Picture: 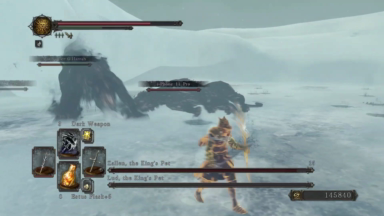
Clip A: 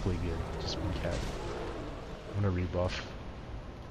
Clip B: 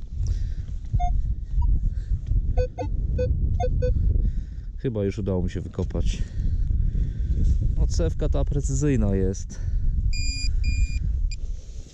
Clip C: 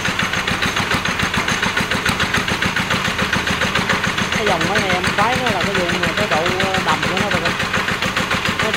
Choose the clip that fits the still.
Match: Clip A